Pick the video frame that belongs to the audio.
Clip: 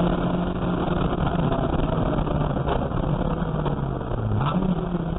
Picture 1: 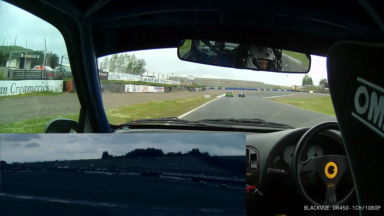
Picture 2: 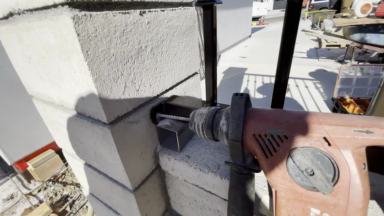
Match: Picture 1